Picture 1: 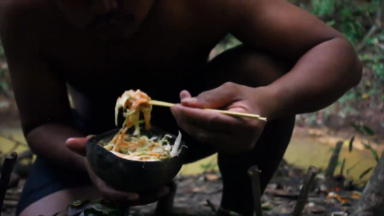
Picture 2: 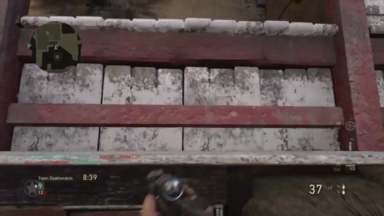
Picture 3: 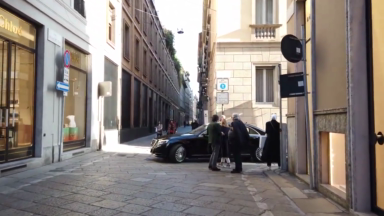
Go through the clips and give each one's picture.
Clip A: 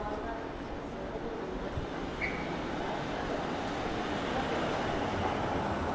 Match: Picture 3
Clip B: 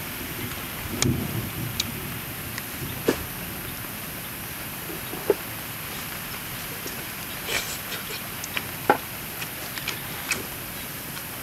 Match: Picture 1